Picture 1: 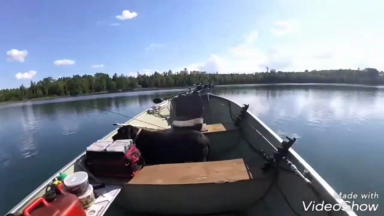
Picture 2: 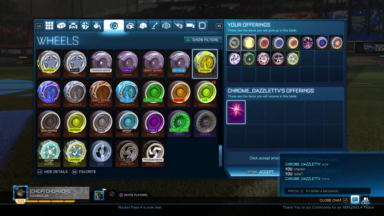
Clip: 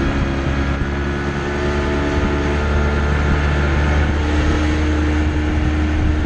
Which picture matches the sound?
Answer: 1